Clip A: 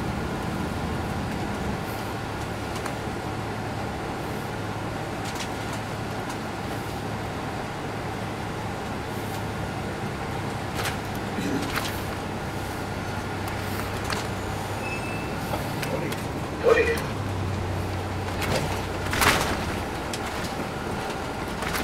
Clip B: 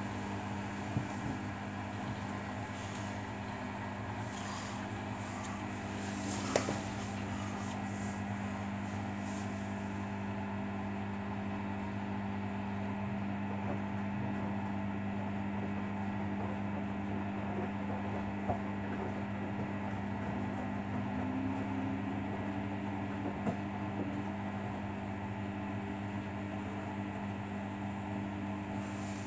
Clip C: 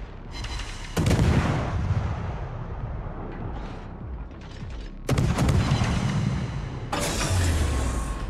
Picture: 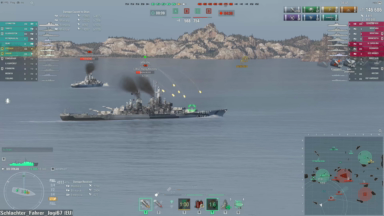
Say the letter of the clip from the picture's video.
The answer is C